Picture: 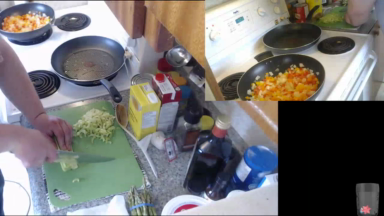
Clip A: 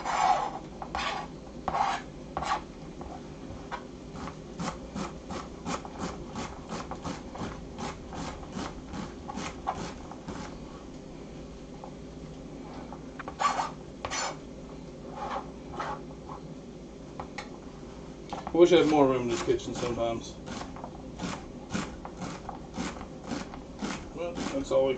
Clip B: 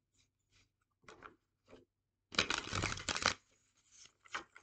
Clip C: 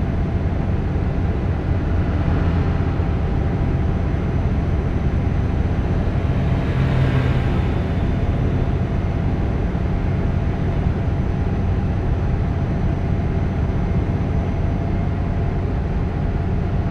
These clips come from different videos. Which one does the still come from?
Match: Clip A